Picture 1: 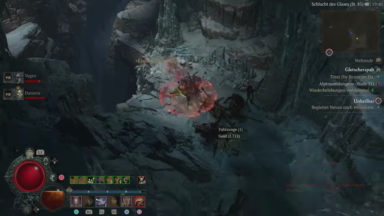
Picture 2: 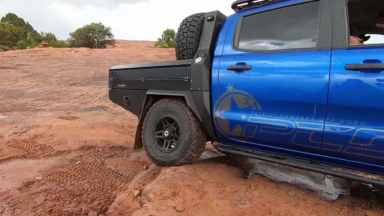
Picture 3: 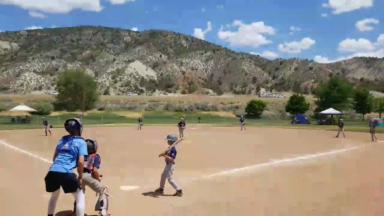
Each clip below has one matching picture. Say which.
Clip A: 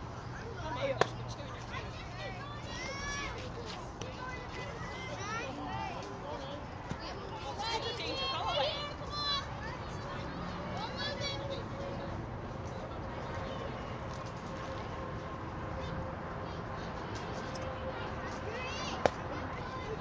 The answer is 3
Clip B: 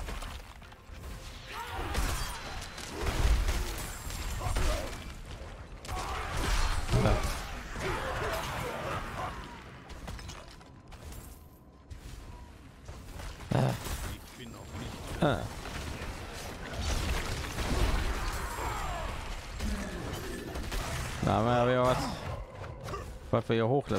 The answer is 1